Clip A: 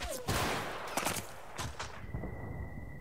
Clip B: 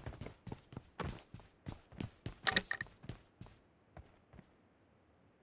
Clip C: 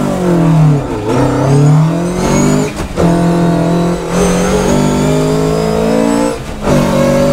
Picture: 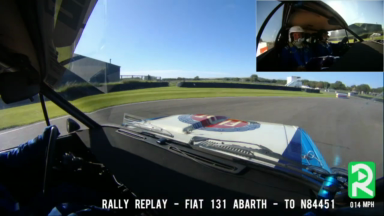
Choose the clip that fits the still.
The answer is C